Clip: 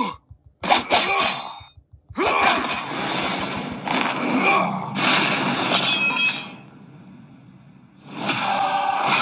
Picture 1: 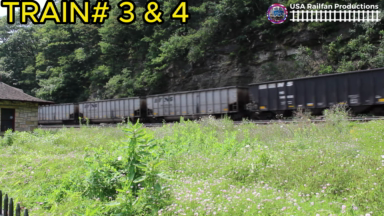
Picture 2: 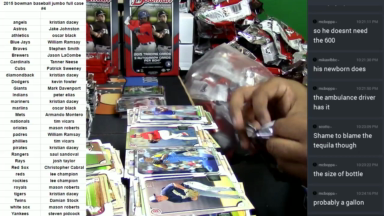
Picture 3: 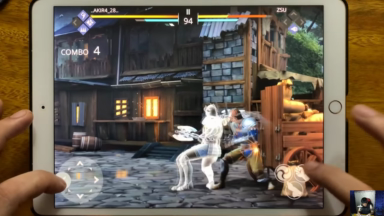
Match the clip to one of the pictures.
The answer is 3